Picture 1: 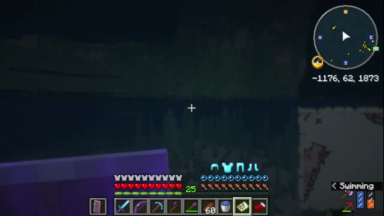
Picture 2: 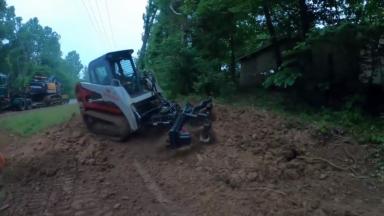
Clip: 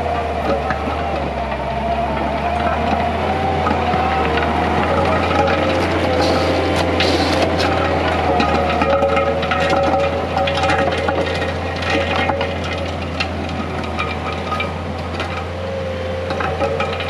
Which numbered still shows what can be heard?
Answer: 2